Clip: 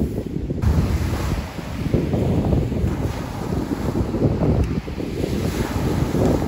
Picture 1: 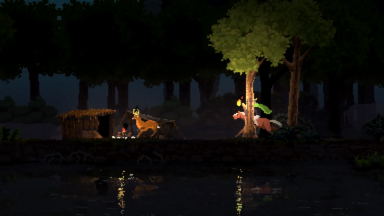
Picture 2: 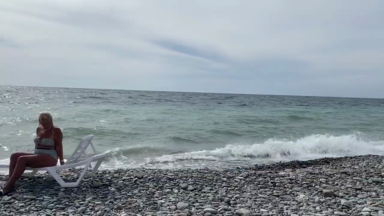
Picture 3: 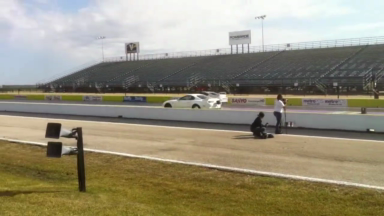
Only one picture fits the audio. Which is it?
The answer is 2